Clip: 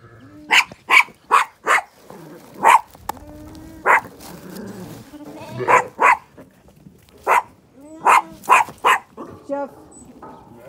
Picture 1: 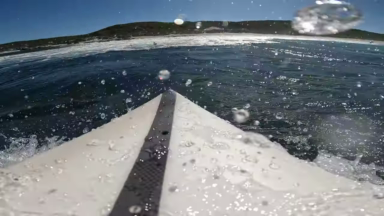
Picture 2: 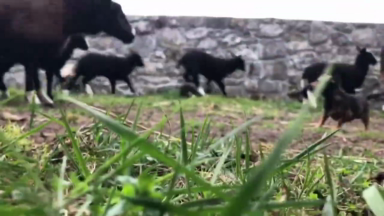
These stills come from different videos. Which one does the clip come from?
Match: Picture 2